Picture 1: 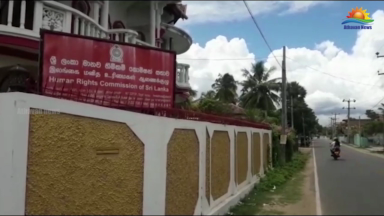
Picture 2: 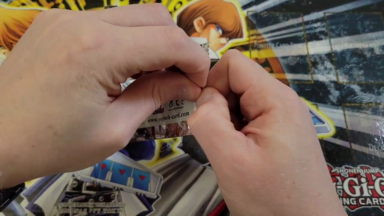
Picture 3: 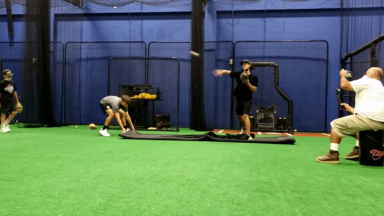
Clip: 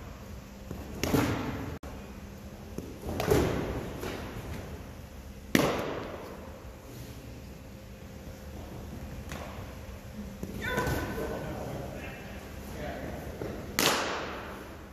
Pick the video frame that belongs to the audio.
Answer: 3